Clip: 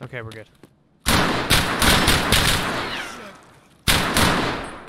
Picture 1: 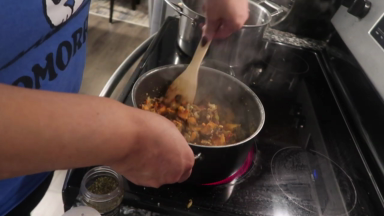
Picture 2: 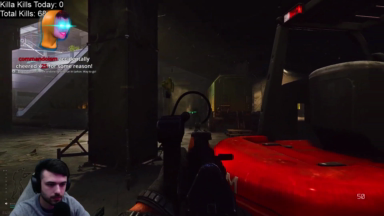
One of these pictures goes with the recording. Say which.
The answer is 2